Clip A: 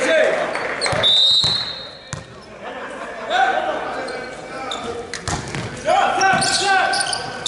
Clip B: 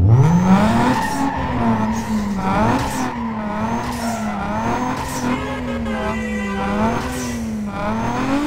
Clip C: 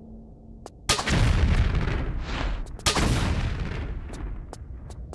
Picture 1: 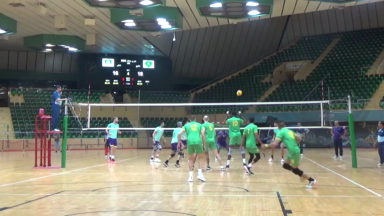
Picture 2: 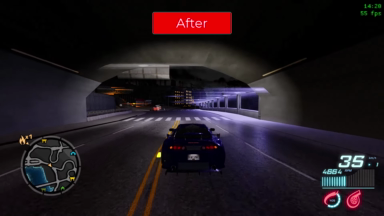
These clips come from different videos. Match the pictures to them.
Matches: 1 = A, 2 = B